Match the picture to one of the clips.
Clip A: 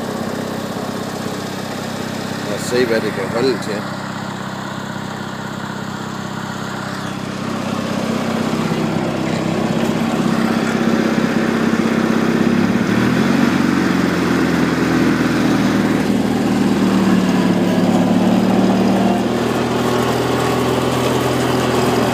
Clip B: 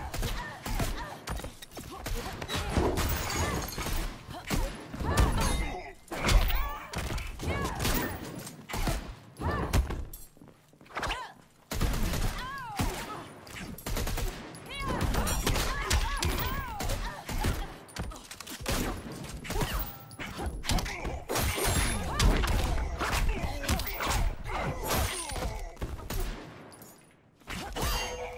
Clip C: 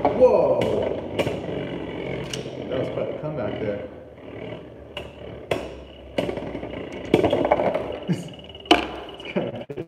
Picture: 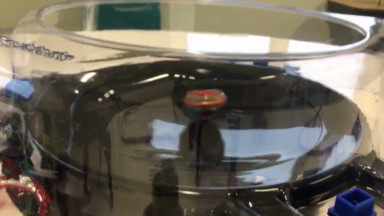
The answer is C